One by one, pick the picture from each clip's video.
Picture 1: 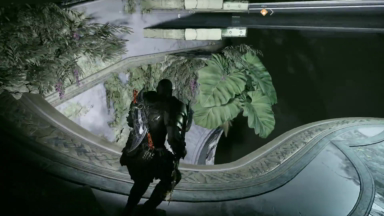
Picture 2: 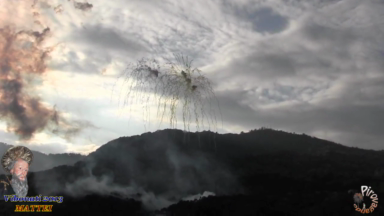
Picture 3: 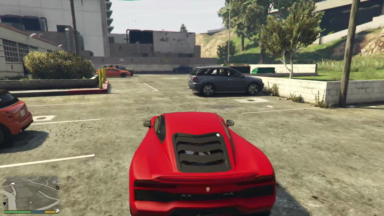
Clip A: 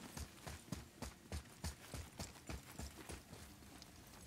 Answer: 1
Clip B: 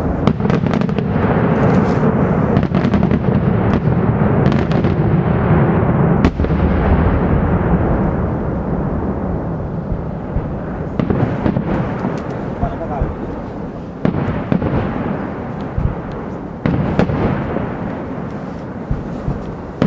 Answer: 2